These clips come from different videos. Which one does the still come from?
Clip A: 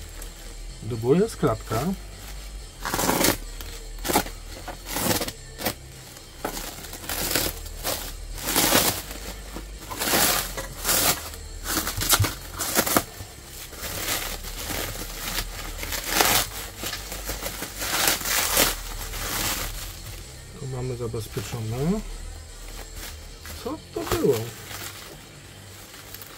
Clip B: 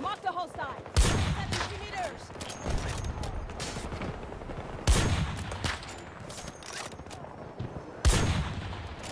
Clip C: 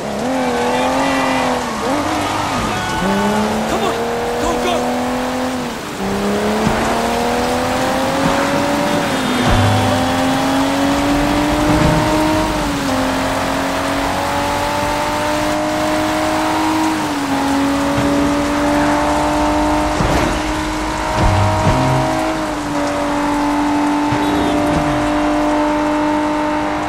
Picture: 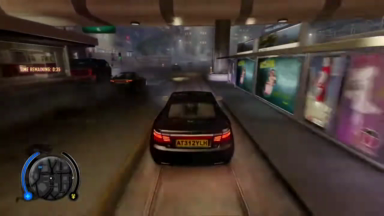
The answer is C